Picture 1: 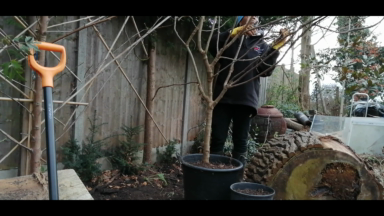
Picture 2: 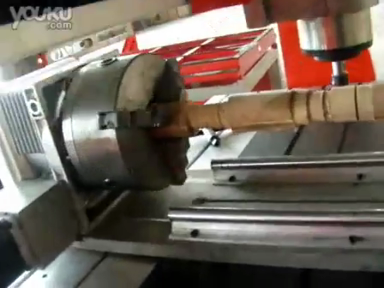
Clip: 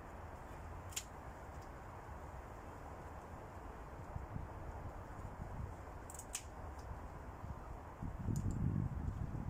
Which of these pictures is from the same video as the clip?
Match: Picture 1